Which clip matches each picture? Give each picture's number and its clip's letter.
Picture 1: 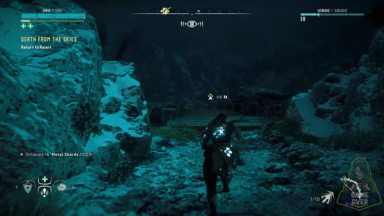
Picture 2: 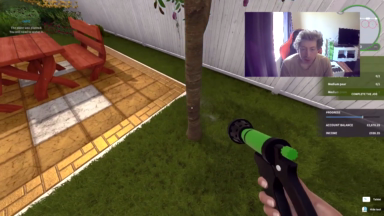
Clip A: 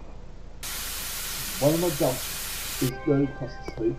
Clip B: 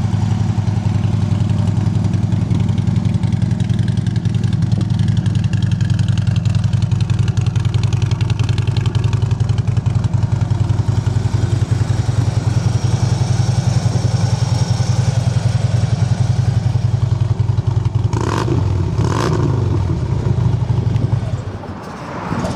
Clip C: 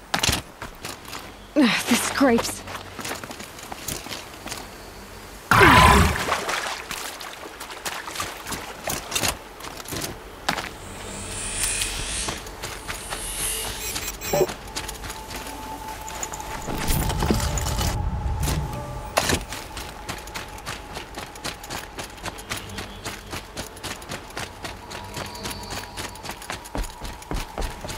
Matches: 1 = C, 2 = A